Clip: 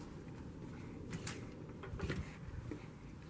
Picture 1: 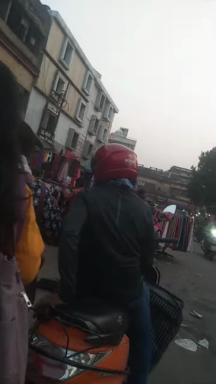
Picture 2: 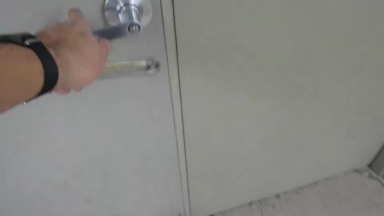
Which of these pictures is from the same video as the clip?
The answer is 2